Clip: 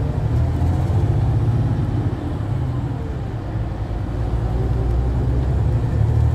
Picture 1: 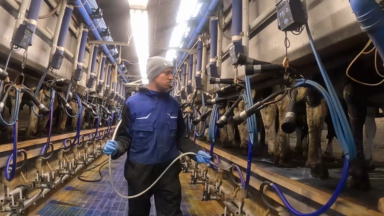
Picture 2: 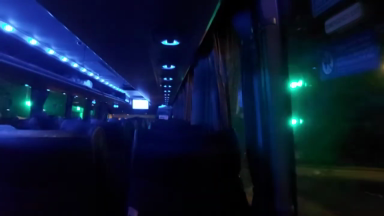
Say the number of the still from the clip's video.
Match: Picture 2